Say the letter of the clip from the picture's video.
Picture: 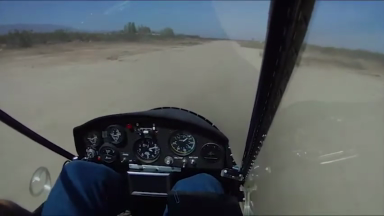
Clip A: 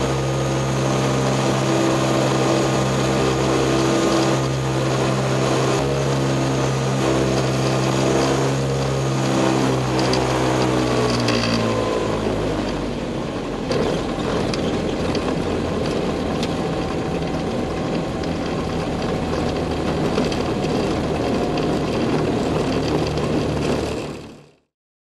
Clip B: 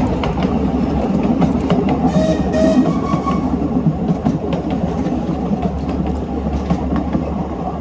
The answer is A